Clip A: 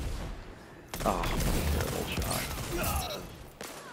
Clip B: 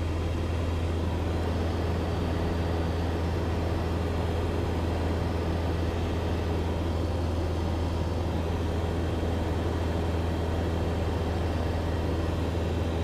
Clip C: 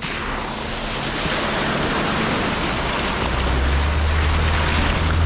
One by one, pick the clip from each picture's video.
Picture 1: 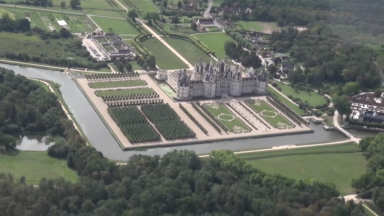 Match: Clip B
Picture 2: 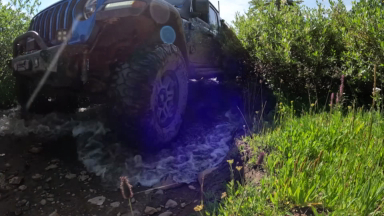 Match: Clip C